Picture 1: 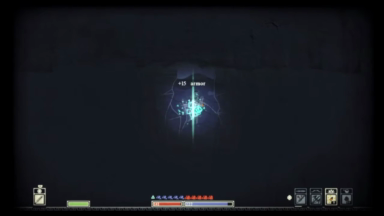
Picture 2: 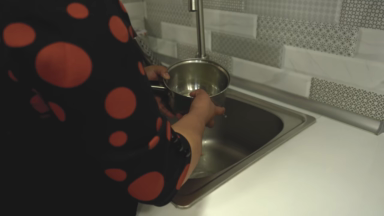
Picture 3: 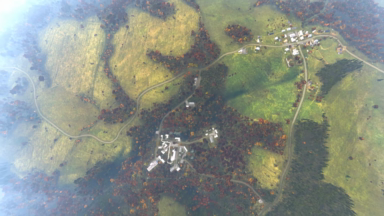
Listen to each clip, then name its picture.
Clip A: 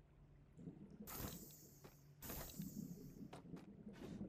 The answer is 1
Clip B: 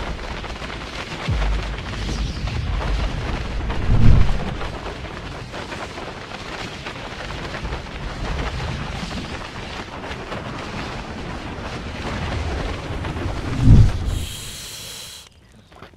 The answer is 3